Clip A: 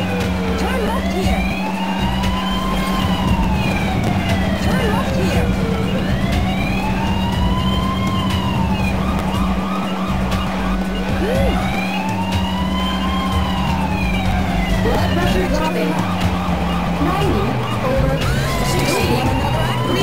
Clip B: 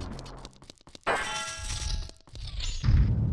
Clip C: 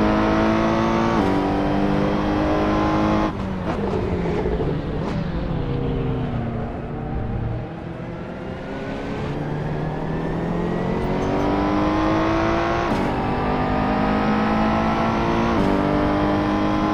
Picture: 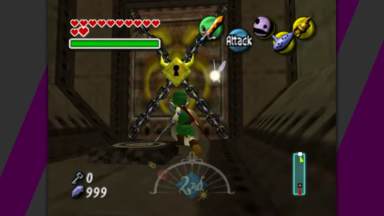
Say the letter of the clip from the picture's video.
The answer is B